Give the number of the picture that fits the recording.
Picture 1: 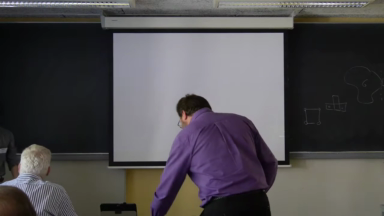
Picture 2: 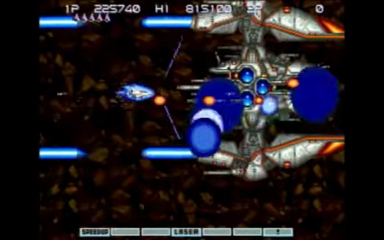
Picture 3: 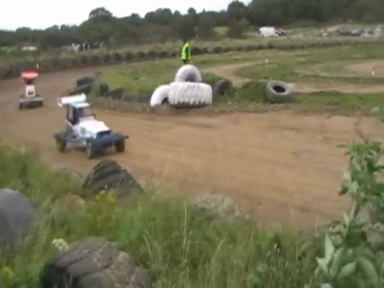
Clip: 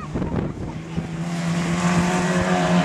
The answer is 3